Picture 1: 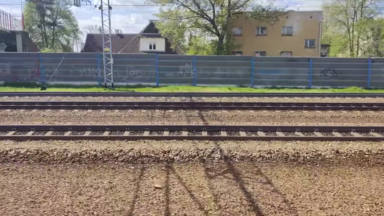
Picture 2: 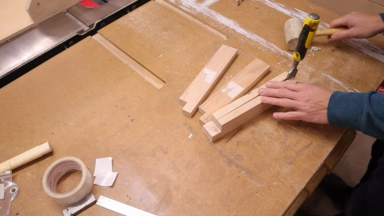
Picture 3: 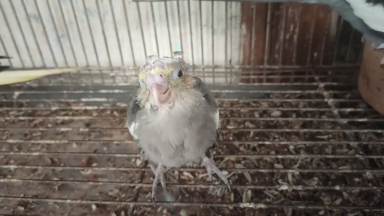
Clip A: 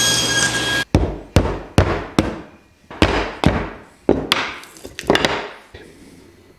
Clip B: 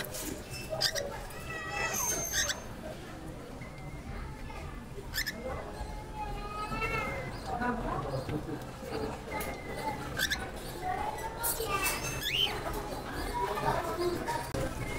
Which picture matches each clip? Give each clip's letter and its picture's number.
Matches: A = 2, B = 3